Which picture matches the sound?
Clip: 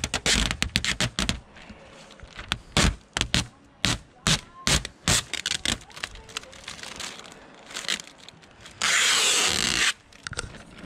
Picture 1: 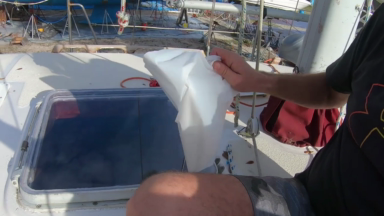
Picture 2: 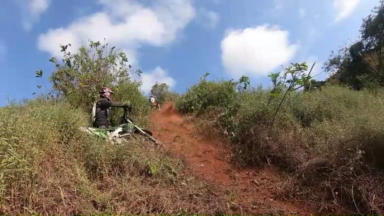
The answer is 1